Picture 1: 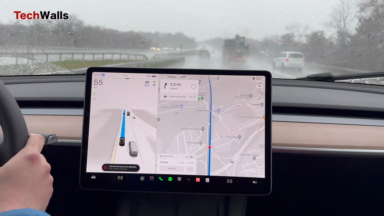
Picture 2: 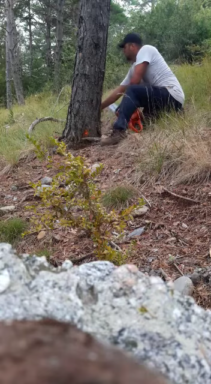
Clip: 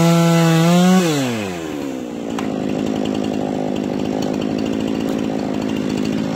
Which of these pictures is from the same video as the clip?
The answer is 2